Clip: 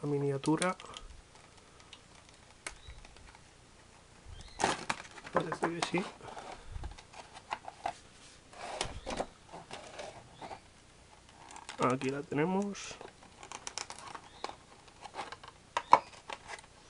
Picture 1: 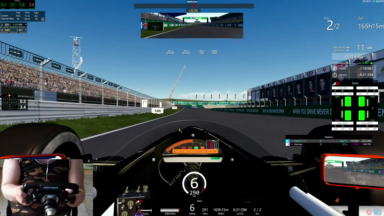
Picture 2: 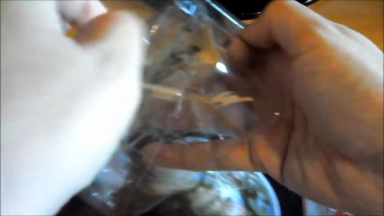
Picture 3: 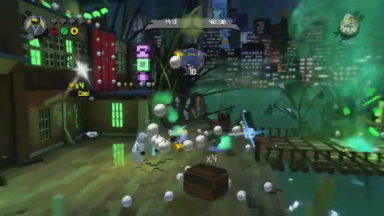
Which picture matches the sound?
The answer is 2